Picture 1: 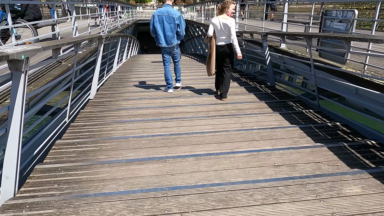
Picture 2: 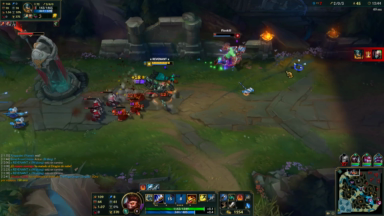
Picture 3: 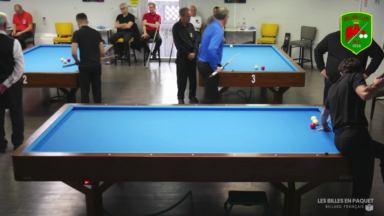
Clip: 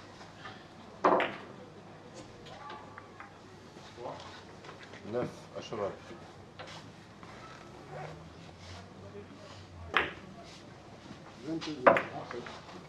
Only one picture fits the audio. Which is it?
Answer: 3